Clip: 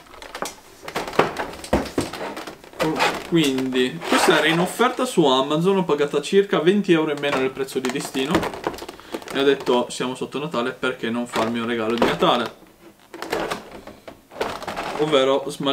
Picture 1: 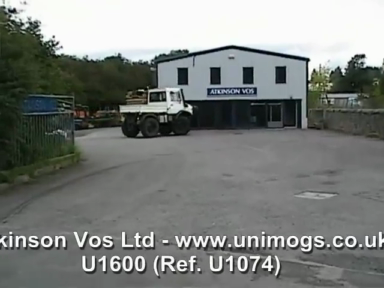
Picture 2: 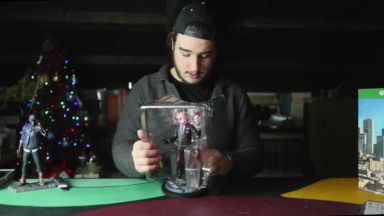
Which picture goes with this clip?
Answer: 2